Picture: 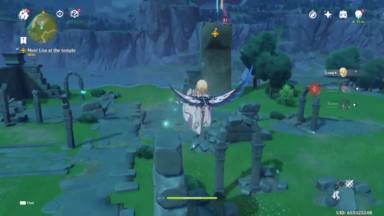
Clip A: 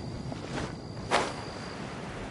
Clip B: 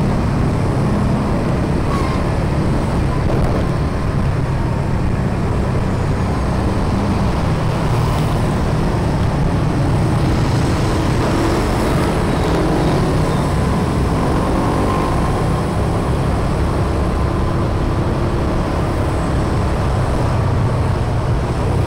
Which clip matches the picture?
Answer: A